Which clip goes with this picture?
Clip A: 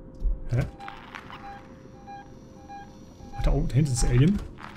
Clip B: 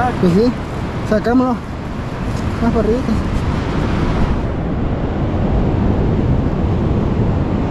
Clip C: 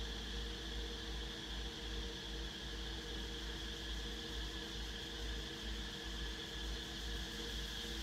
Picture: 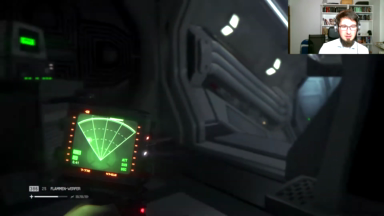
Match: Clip A